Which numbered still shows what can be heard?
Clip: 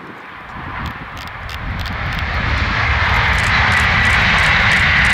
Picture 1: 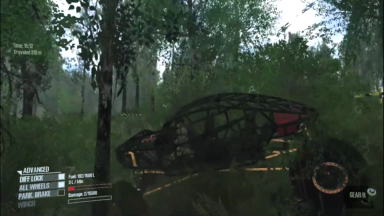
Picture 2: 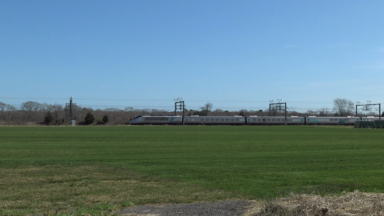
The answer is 2